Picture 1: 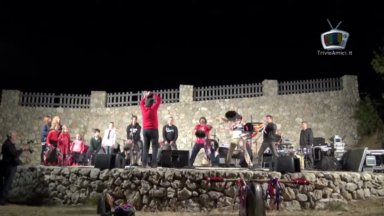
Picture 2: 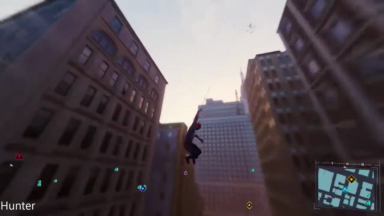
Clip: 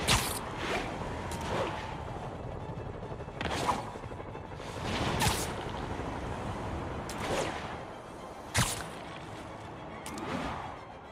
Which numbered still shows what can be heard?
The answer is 2